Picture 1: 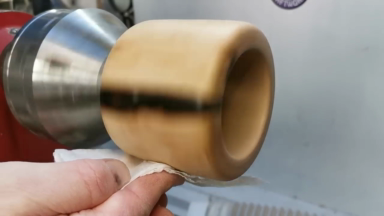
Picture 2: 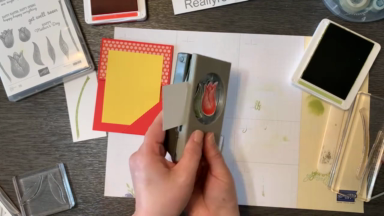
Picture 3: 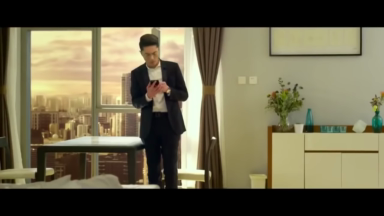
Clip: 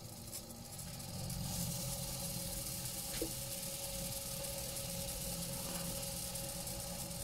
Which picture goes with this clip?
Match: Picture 1